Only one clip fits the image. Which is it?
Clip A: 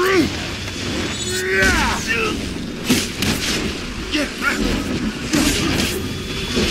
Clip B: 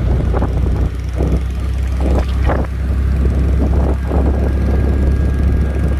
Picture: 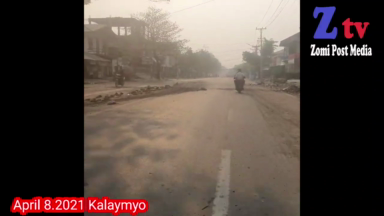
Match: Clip B